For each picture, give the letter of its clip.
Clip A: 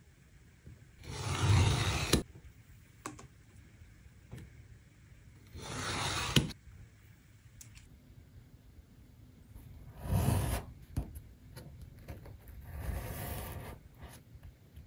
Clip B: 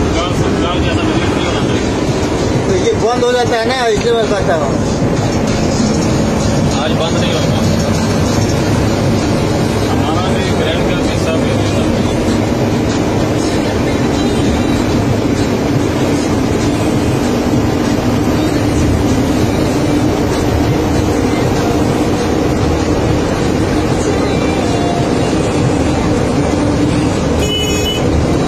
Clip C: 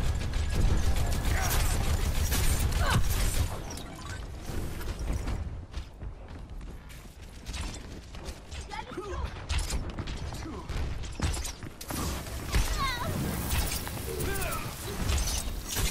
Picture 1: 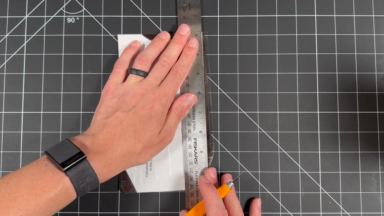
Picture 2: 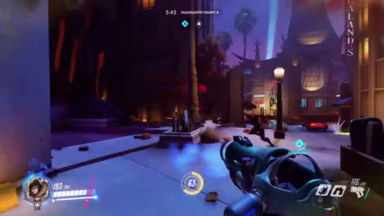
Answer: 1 A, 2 C